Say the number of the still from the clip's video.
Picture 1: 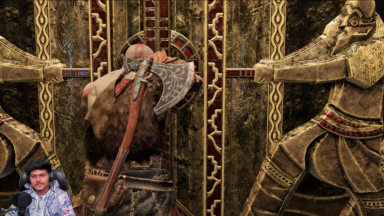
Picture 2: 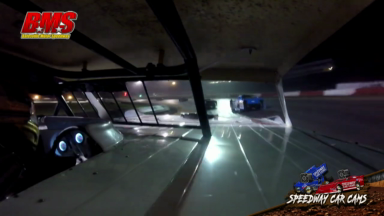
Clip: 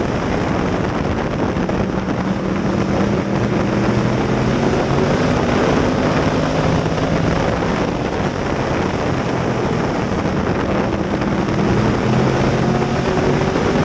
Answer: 2